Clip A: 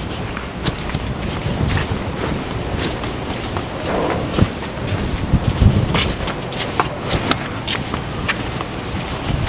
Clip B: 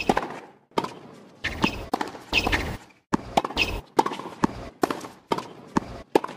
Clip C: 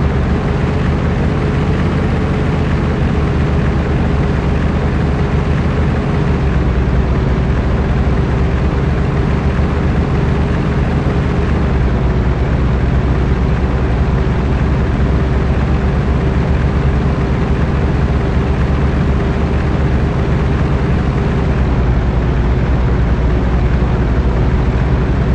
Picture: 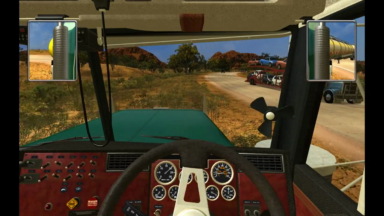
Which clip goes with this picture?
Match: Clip C